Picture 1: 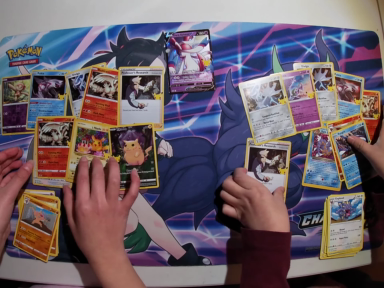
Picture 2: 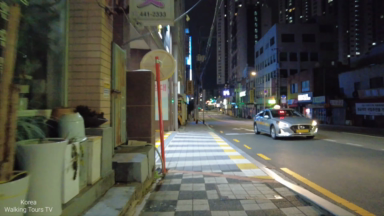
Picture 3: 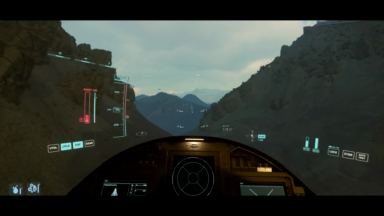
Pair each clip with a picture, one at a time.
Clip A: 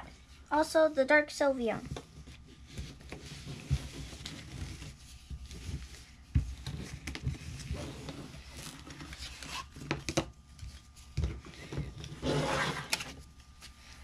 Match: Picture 1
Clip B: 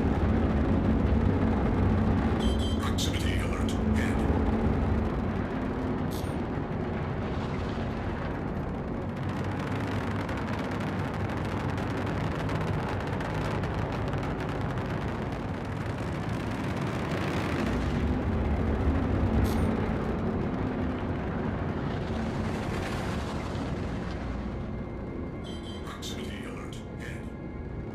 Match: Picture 3